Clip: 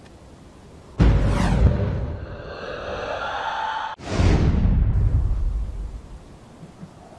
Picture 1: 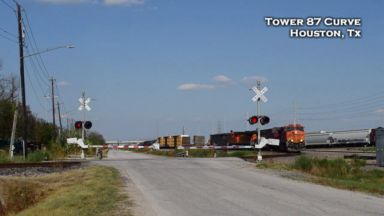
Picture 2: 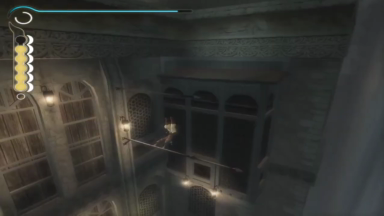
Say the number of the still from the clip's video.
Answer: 2